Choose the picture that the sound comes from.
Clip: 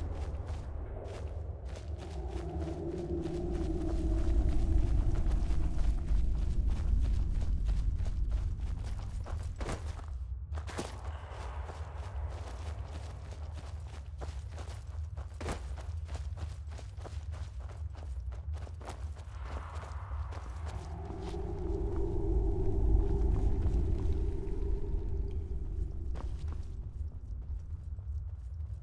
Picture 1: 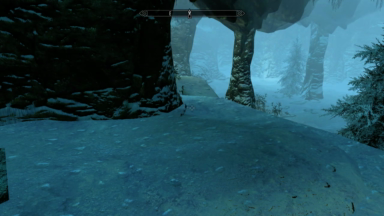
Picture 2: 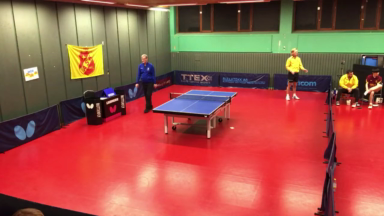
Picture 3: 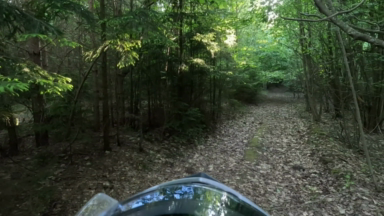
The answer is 1